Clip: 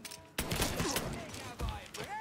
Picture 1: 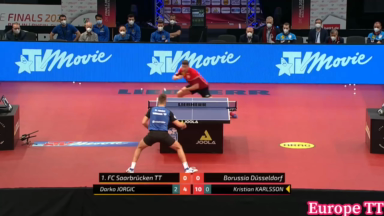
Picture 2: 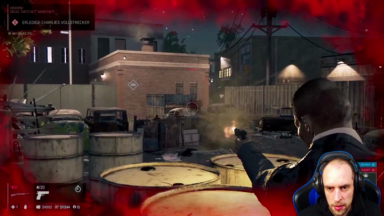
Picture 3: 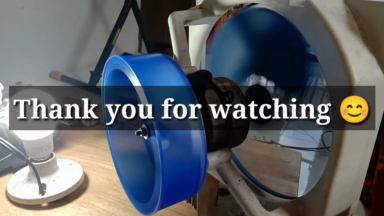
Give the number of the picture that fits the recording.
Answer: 2